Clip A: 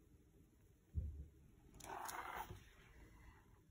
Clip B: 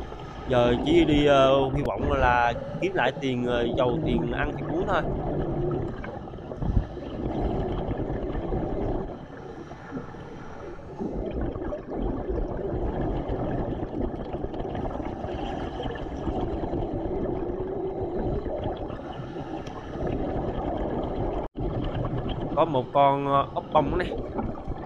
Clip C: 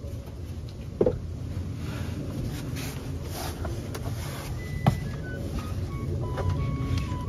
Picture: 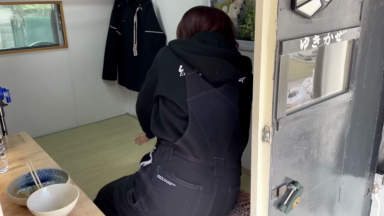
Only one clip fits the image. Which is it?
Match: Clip C